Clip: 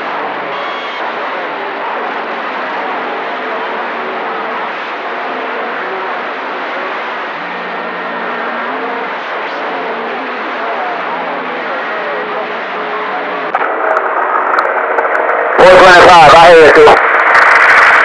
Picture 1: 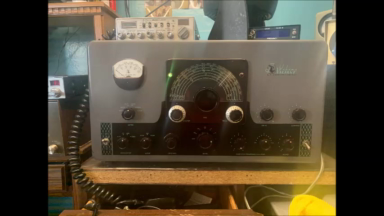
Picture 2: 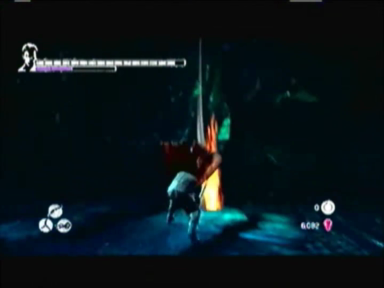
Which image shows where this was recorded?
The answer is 1